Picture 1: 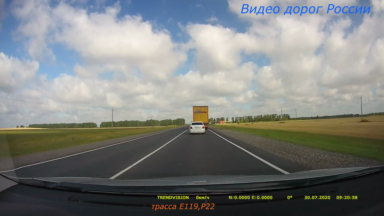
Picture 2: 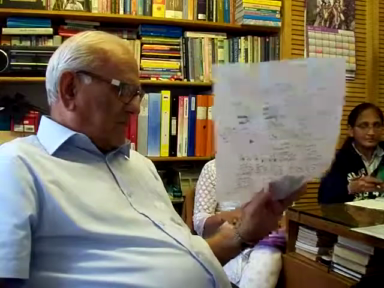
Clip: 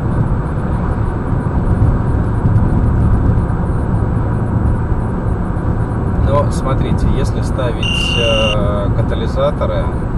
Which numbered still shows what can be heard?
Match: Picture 1